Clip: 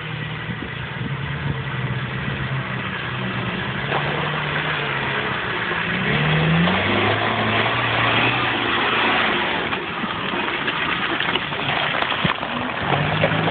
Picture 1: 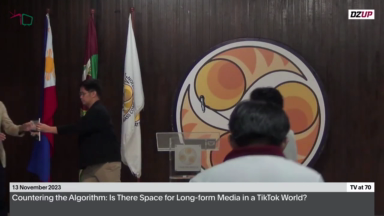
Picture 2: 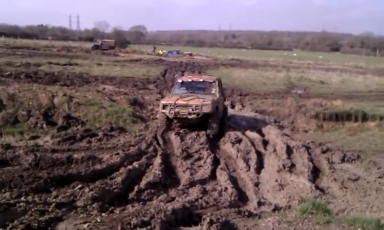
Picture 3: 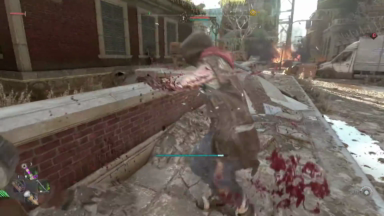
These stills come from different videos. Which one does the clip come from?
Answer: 2